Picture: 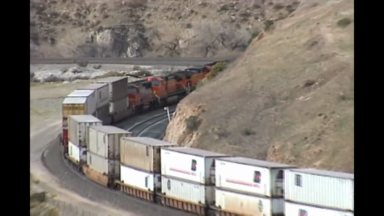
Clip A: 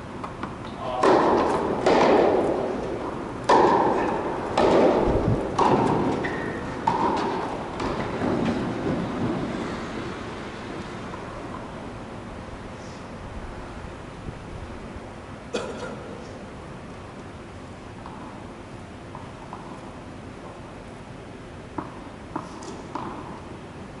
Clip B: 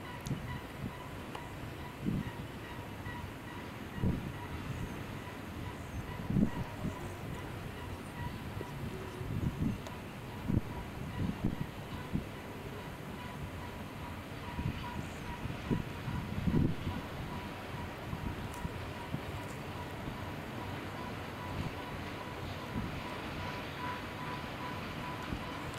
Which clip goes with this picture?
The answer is B